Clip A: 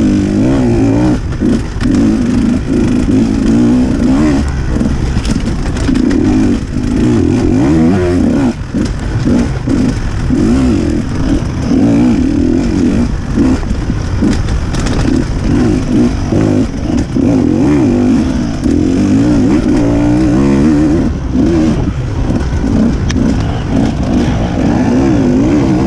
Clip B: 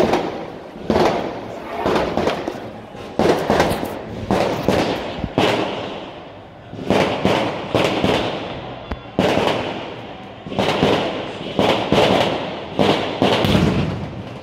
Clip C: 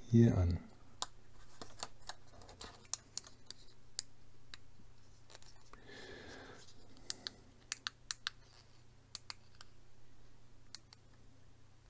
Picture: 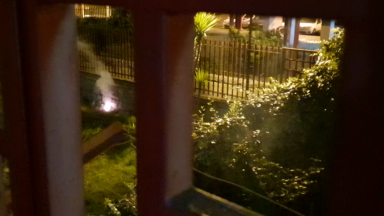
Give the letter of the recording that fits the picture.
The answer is B